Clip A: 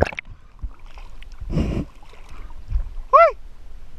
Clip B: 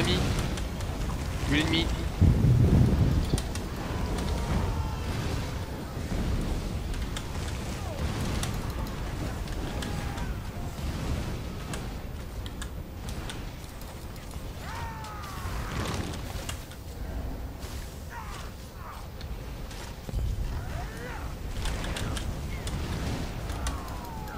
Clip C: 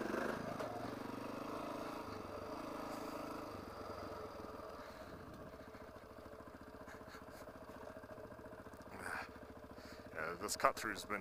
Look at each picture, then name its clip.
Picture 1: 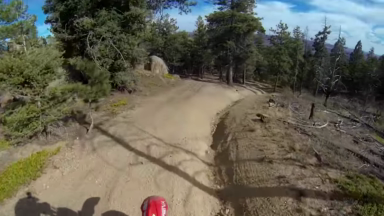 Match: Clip C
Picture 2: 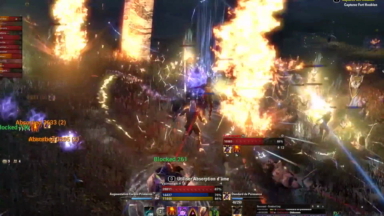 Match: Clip B